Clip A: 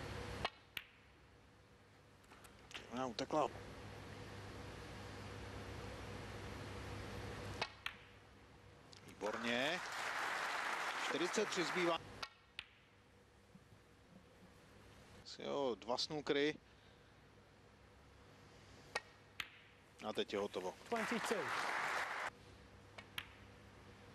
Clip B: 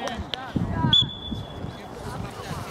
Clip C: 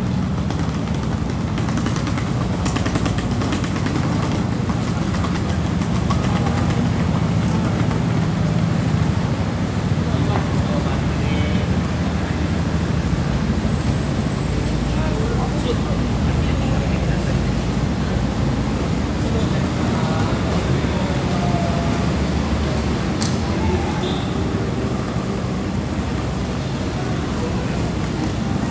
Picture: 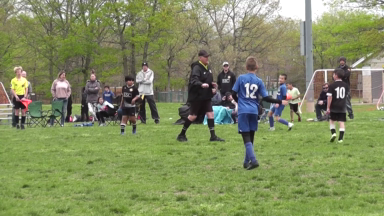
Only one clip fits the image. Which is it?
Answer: B